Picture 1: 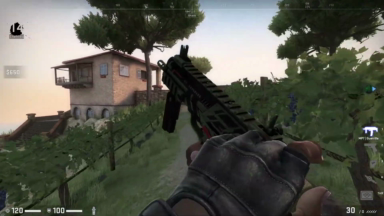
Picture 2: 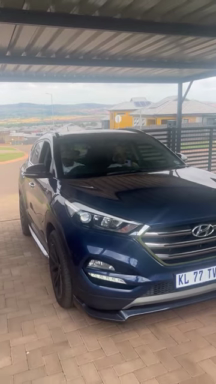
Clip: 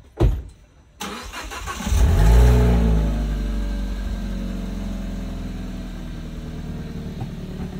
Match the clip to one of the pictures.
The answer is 2